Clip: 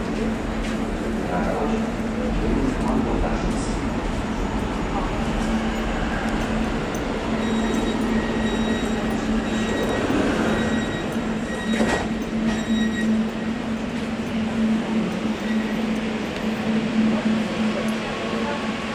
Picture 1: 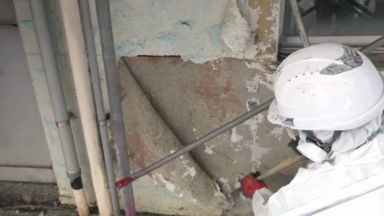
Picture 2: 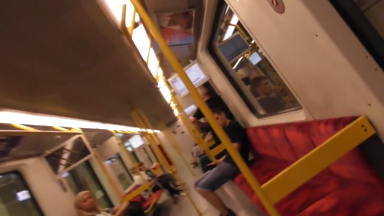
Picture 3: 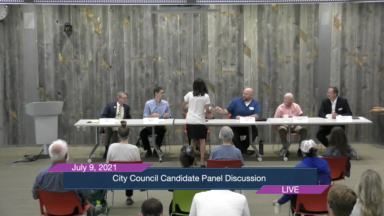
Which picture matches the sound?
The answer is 2